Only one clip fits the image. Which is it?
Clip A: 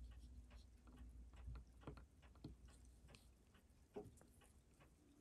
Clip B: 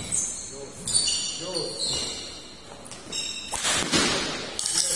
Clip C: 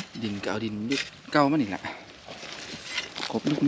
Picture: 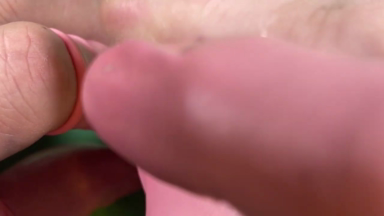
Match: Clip A